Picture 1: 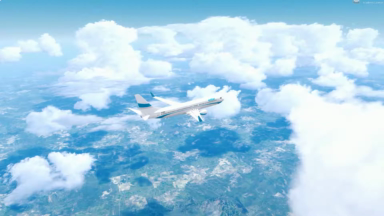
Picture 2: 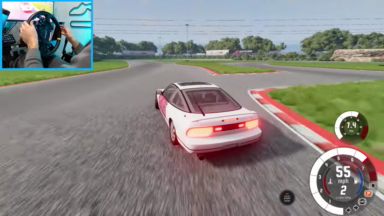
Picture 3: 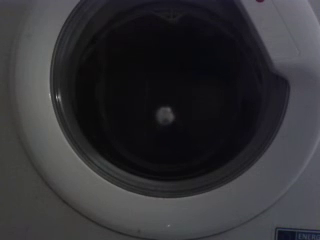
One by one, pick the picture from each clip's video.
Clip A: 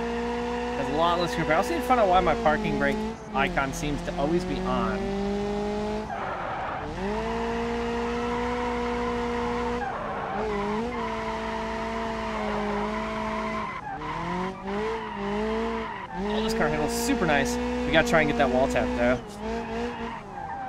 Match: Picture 2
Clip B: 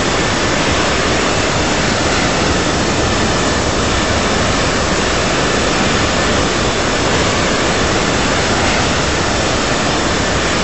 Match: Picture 1